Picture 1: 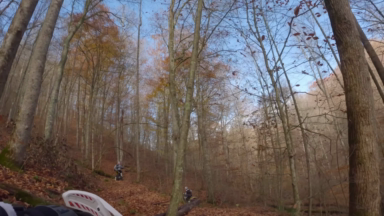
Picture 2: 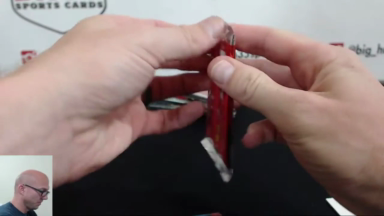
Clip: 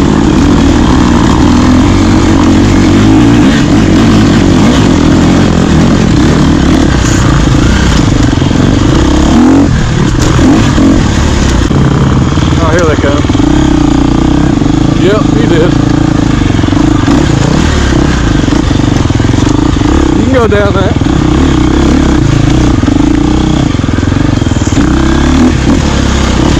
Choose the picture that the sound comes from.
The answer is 1